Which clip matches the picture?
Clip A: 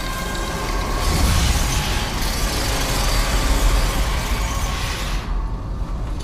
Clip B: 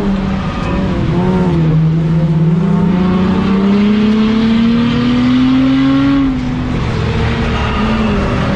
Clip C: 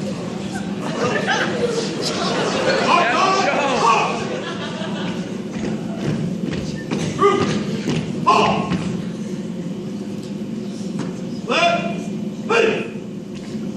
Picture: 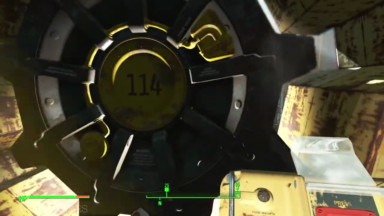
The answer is A